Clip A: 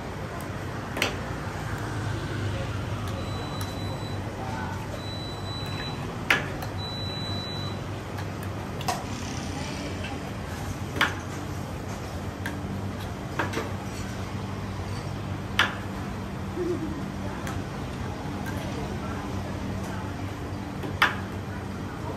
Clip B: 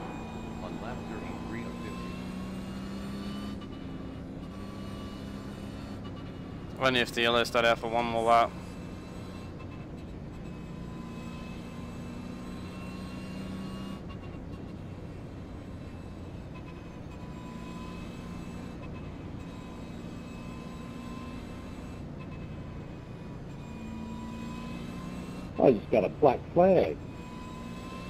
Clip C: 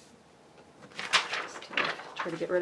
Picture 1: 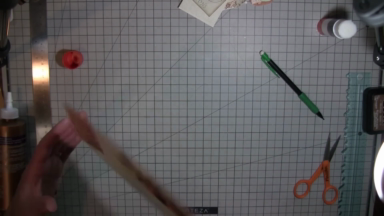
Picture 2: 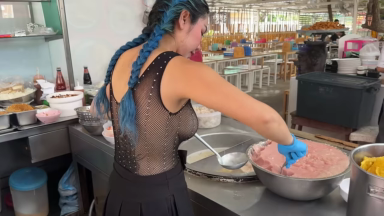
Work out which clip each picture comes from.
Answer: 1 C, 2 A